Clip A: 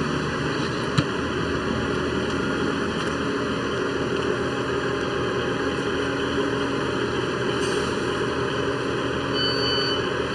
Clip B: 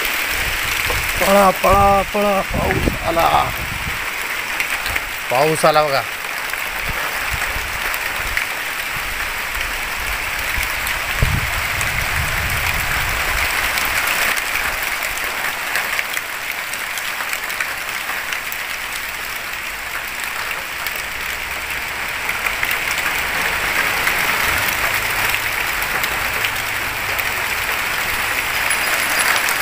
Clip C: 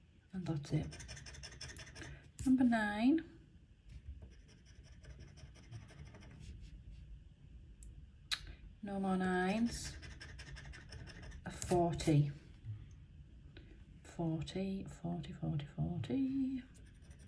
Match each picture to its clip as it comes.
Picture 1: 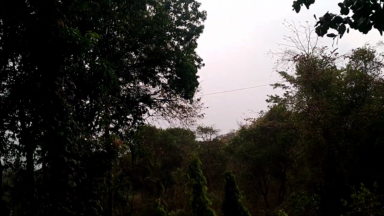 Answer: B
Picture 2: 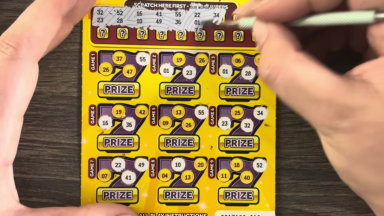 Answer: C